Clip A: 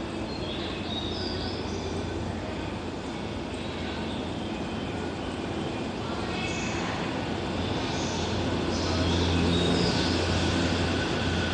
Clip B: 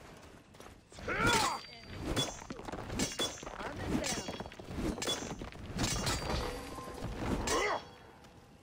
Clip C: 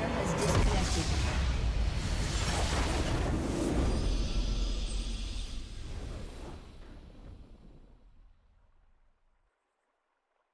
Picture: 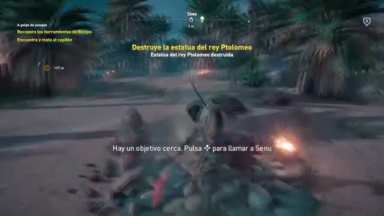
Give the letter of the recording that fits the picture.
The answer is B